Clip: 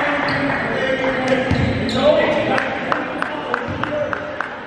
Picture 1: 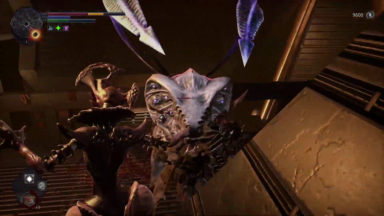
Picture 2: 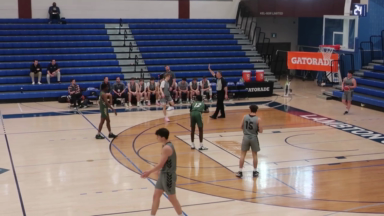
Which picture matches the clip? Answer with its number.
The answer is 2